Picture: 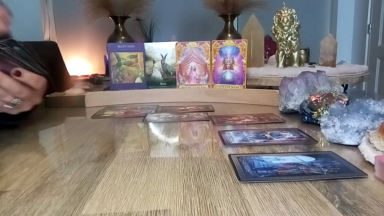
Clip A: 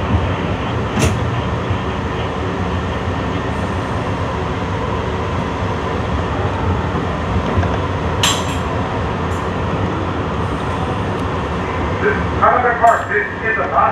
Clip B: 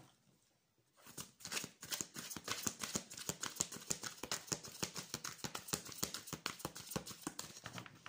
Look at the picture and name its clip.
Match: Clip B